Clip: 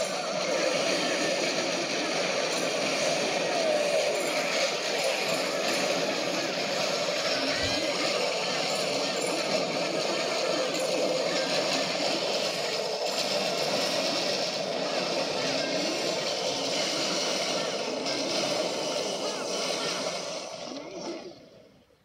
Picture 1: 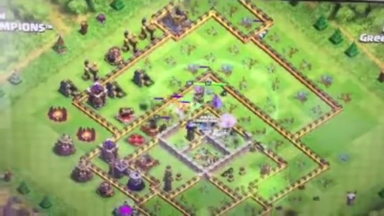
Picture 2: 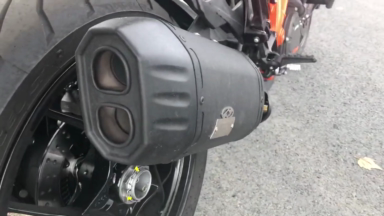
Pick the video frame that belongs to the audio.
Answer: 1